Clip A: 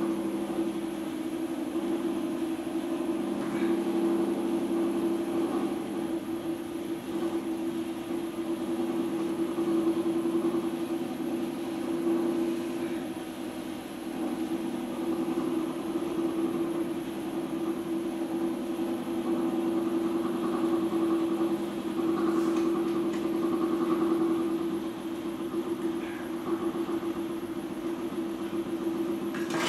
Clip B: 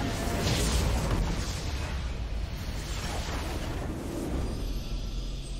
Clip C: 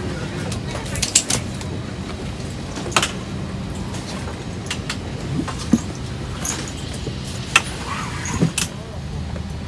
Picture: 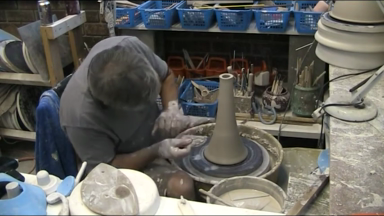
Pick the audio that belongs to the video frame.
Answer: A